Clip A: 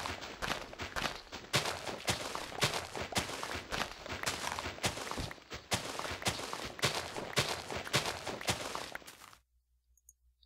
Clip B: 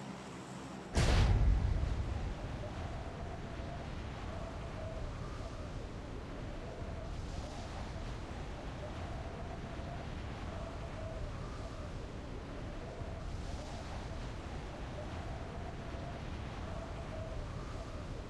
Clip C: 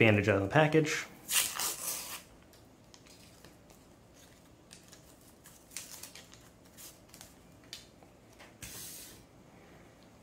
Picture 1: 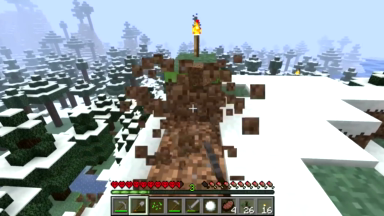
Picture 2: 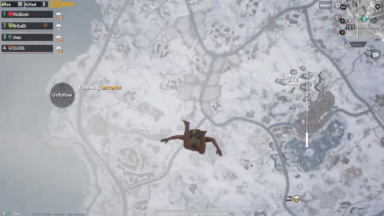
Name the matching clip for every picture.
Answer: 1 A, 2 B